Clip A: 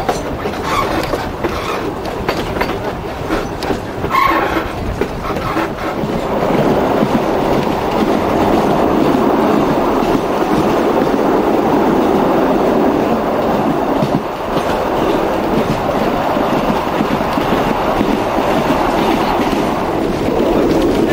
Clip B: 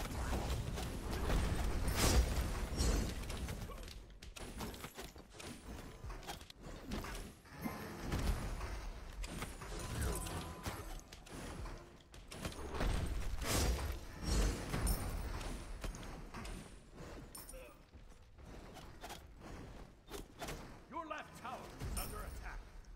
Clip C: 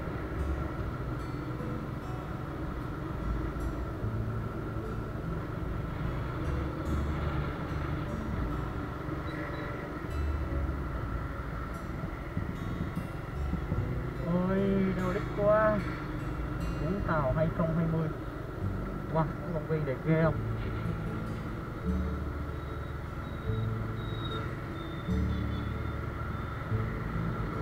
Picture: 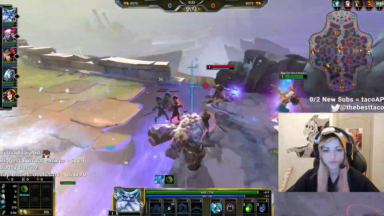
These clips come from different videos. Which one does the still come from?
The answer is B